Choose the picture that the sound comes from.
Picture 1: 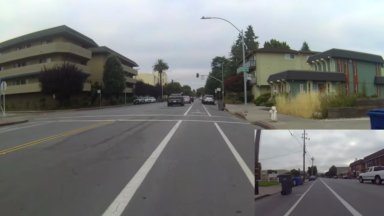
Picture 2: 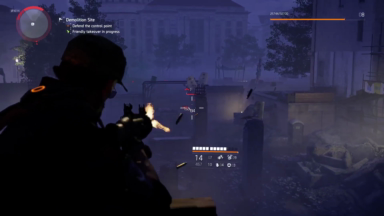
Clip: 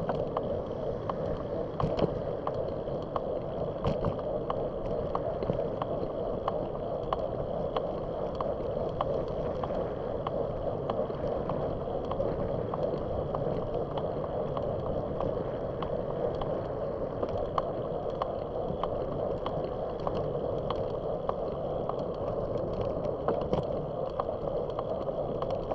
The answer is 1